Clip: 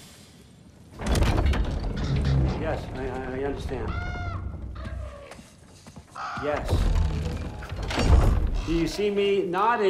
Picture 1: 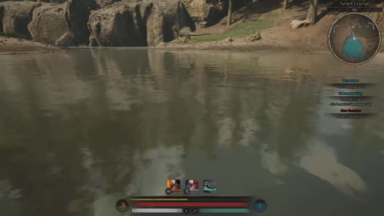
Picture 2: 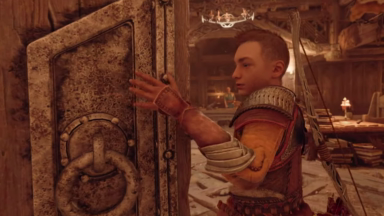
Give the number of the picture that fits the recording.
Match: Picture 2